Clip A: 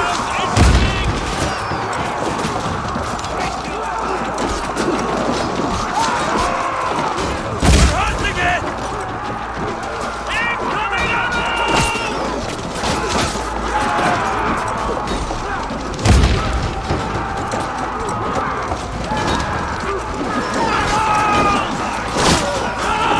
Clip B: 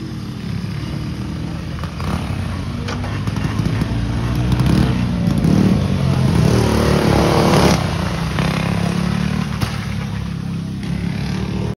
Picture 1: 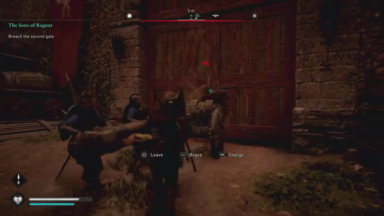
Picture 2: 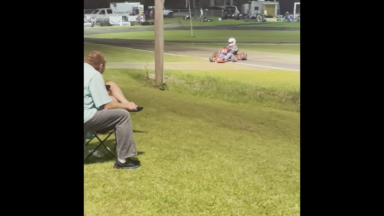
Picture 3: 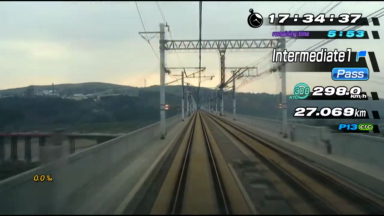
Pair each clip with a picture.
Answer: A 1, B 2